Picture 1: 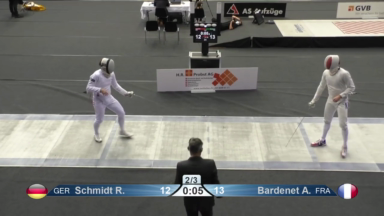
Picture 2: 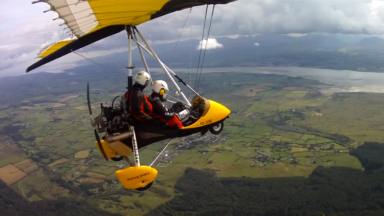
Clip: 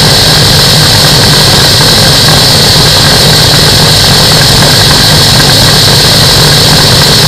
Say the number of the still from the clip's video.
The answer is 2